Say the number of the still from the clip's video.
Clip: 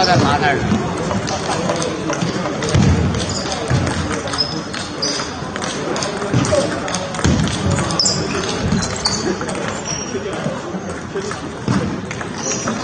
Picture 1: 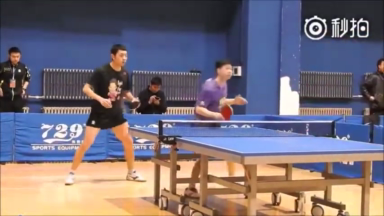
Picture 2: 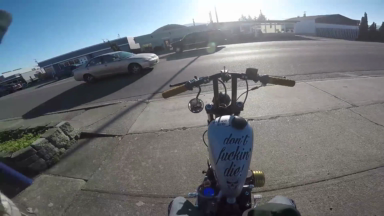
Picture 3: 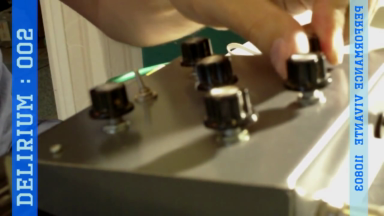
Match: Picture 1